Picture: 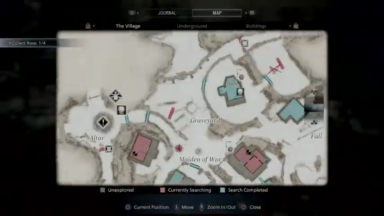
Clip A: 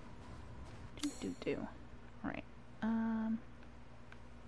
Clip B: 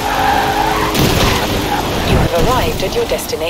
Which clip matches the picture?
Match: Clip A